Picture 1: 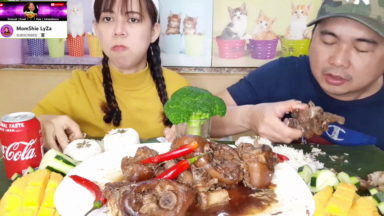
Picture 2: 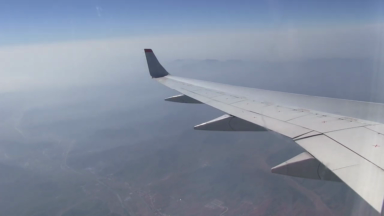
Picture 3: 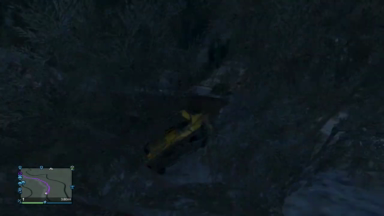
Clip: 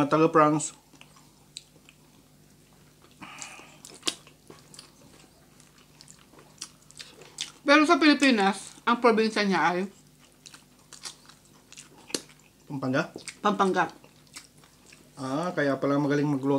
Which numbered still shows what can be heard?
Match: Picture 1